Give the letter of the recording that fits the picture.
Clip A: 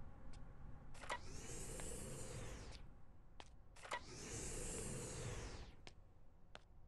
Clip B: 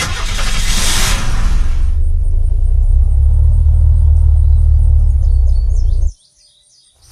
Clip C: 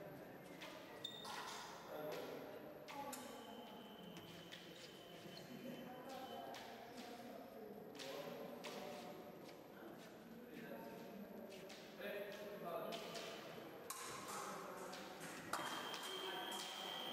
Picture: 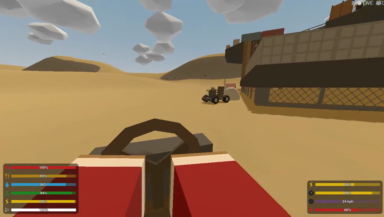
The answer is B